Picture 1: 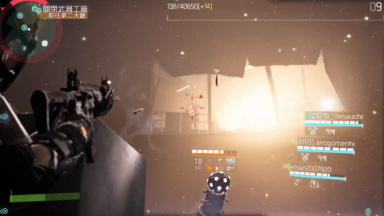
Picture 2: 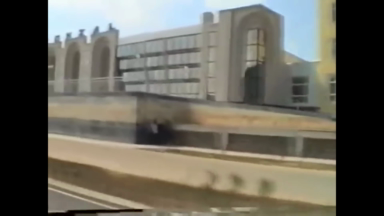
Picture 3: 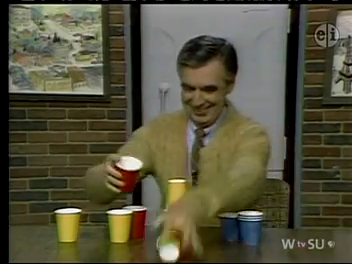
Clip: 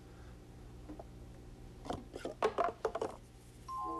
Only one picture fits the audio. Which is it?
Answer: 3